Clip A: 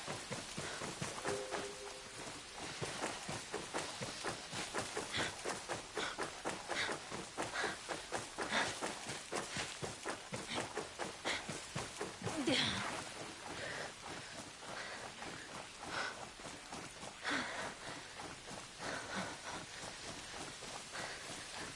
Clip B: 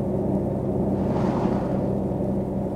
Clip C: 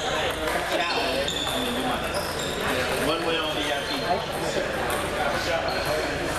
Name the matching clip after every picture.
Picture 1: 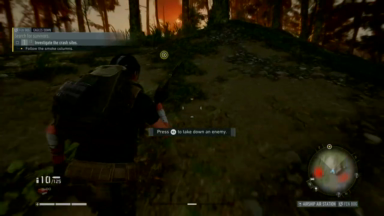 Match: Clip A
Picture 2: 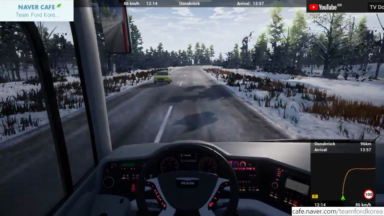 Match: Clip B